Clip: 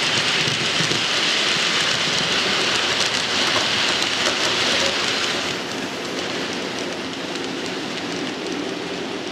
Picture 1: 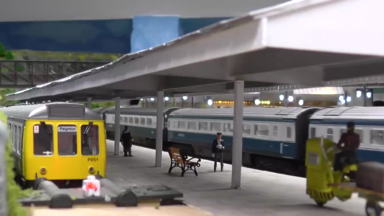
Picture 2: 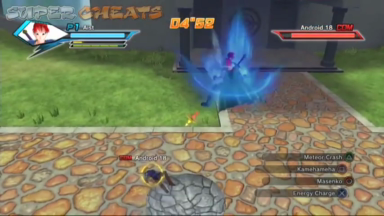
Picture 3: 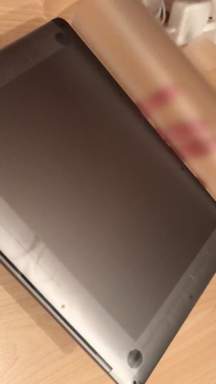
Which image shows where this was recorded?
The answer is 1